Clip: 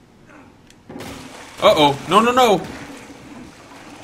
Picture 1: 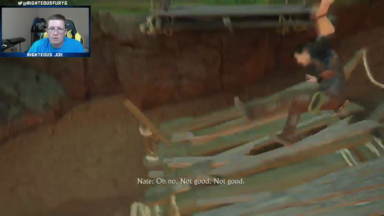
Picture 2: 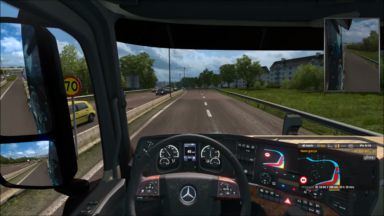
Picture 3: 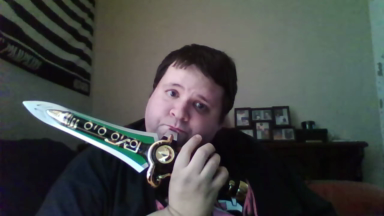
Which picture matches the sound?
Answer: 1